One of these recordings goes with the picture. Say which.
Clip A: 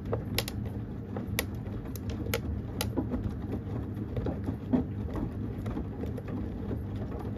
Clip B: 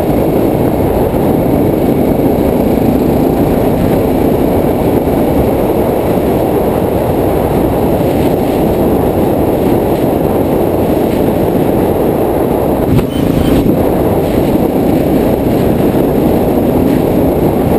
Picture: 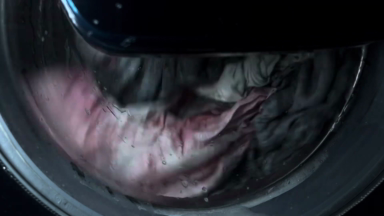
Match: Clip A